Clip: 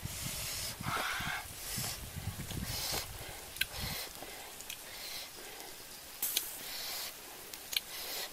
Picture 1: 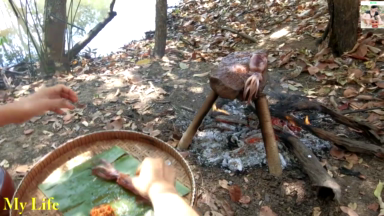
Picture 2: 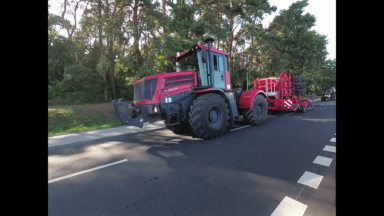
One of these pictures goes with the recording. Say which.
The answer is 1